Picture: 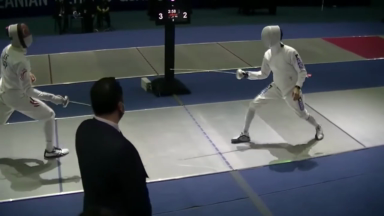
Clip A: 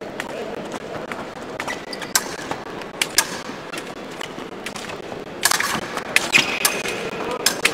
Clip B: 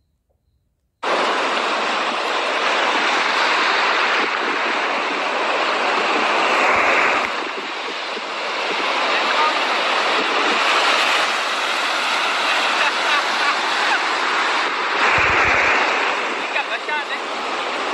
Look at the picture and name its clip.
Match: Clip A